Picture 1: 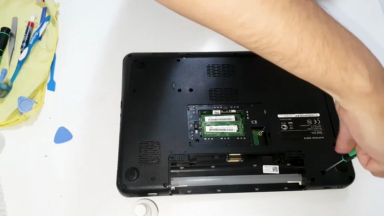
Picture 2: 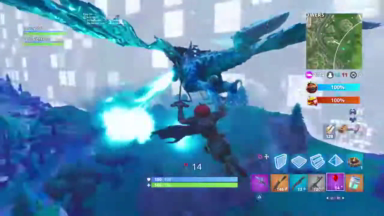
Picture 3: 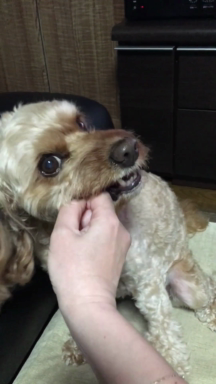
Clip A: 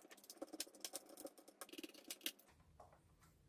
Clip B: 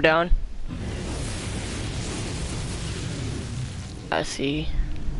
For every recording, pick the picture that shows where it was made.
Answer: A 1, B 2